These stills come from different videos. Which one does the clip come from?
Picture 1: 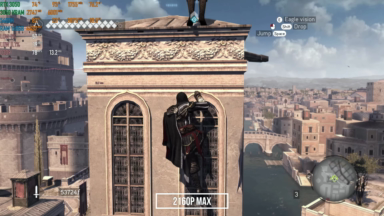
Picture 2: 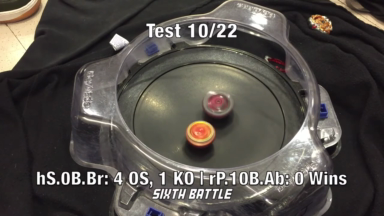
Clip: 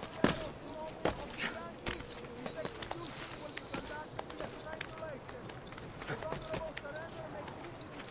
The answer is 1